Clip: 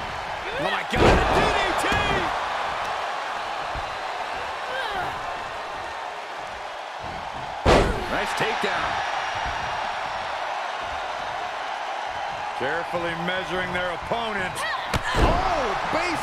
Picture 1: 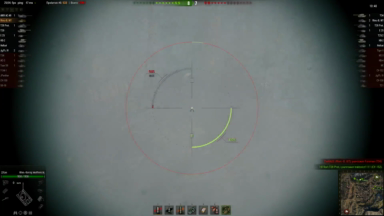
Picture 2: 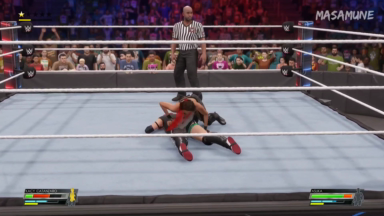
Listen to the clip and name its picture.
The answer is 2